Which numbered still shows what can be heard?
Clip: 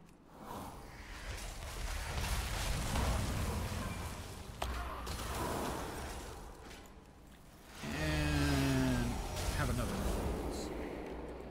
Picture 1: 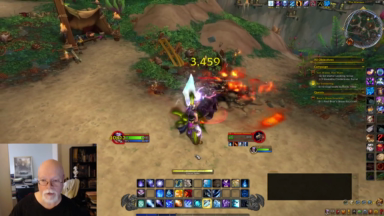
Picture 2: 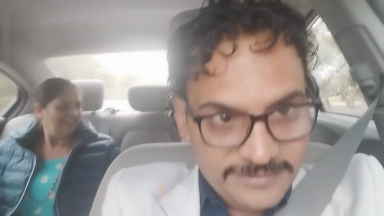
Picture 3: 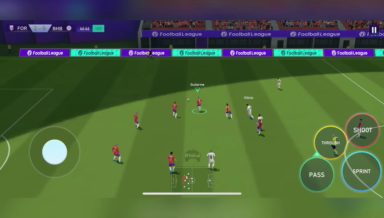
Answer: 1